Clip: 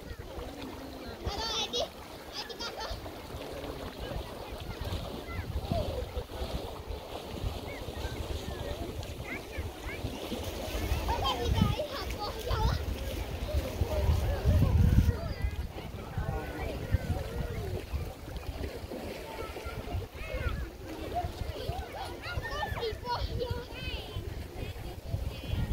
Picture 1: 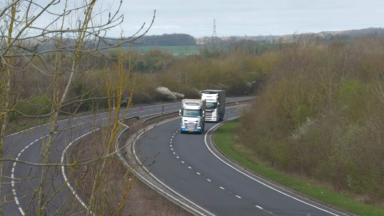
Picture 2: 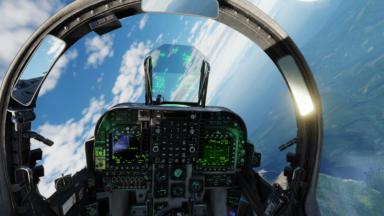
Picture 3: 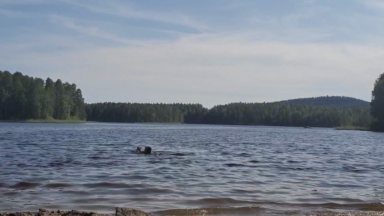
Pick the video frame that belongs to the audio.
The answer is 3